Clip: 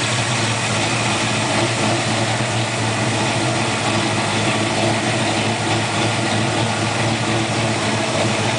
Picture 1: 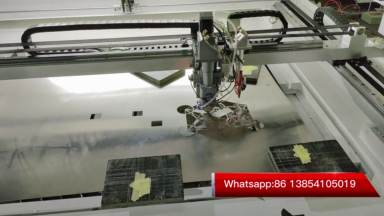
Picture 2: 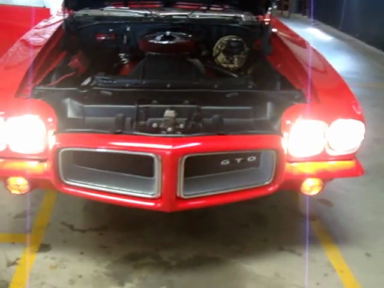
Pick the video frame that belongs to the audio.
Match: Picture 2